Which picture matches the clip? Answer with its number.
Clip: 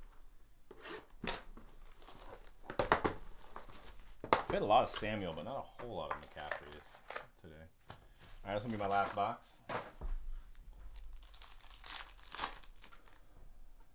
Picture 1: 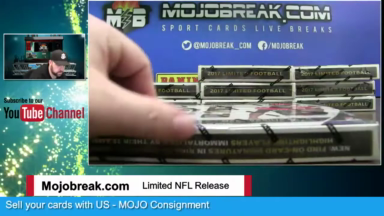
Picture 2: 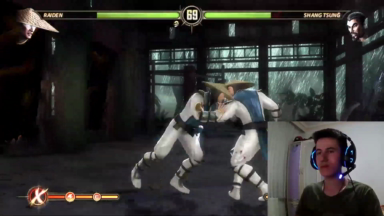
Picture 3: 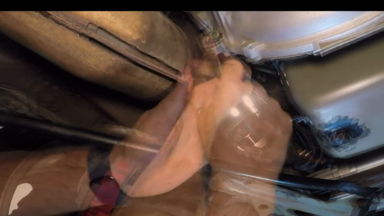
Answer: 1